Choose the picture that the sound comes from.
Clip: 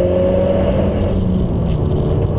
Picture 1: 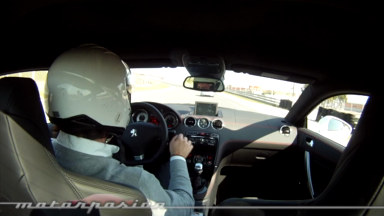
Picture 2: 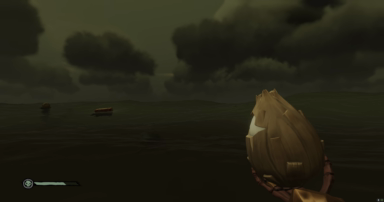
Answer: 1